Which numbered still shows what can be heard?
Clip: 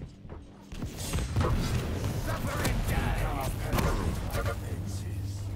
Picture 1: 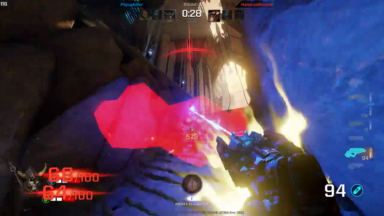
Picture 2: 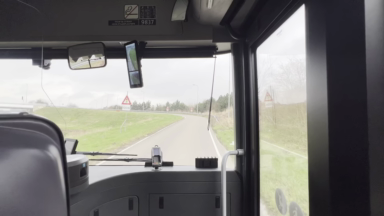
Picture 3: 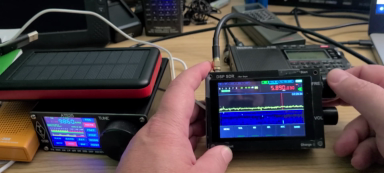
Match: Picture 1